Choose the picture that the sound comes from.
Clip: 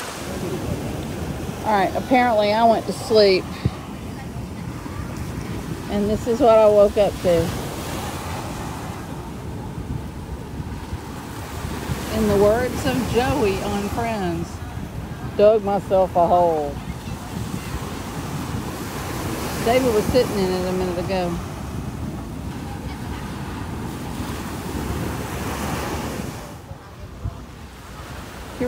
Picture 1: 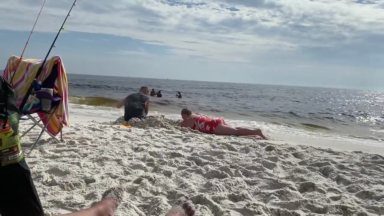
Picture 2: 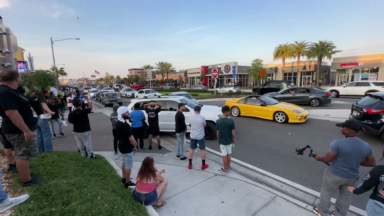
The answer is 1